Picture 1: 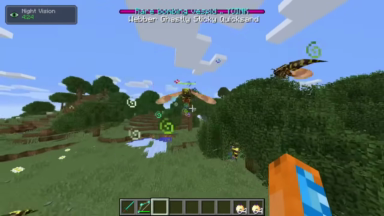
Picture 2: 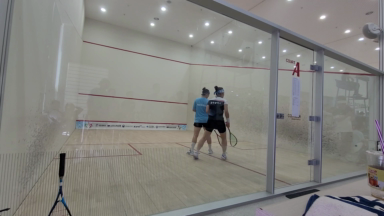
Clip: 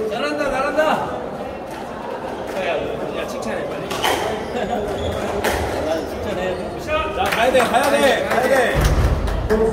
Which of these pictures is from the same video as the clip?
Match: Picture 2